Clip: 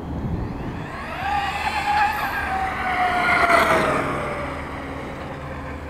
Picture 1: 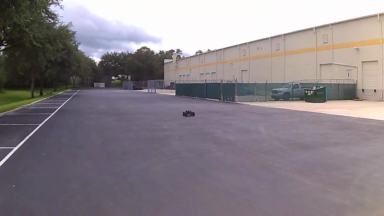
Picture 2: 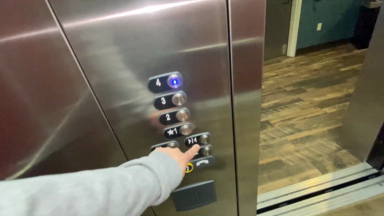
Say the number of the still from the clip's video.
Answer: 1